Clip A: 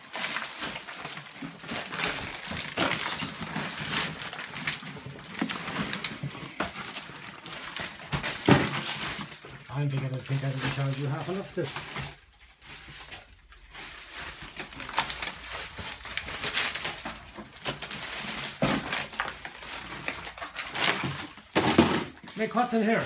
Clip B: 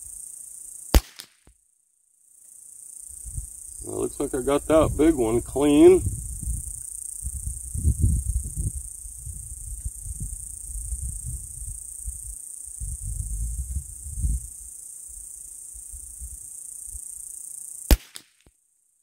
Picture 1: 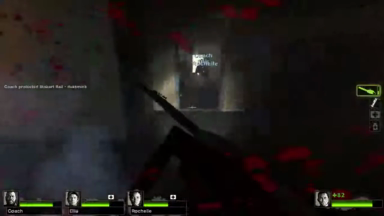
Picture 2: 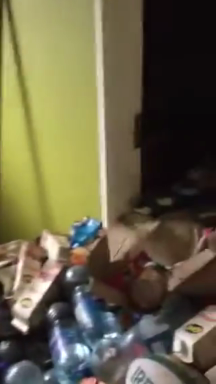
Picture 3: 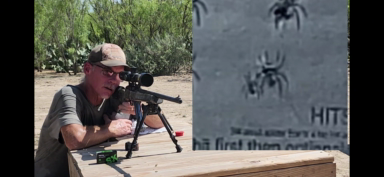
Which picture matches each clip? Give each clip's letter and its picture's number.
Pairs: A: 2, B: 3